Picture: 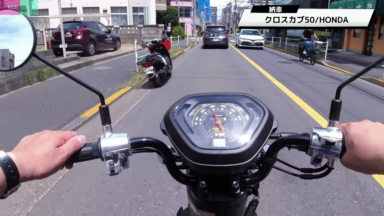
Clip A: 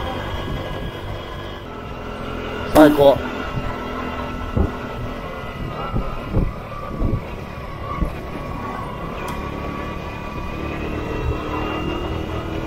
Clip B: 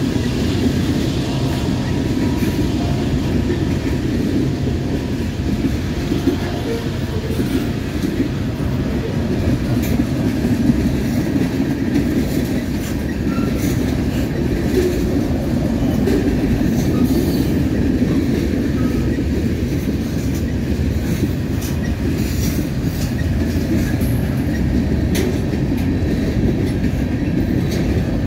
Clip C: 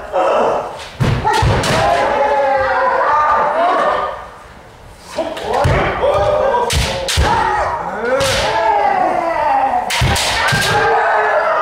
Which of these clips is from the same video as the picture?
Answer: A